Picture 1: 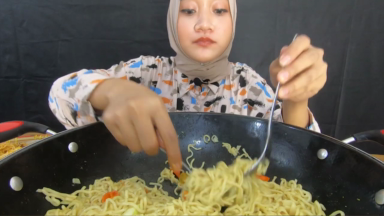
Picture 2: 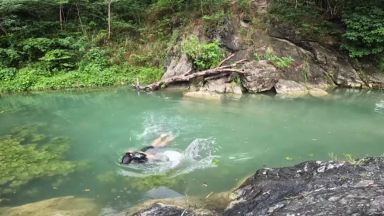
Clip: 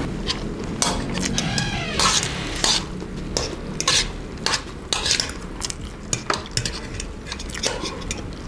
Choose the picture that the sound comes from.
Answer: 1